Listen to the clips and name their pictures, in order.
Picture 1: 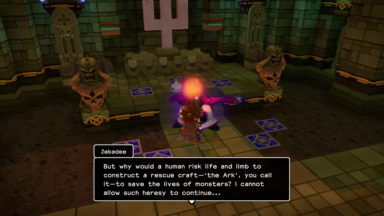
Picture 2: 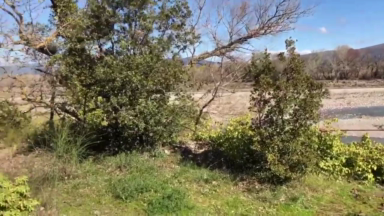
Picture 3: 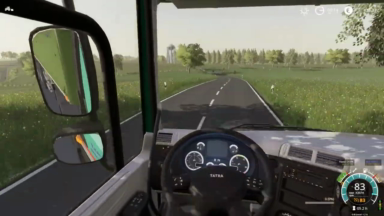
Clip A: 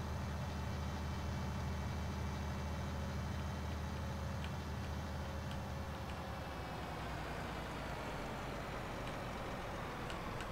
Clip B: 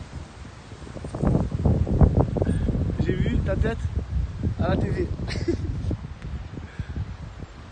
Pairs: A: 3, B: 2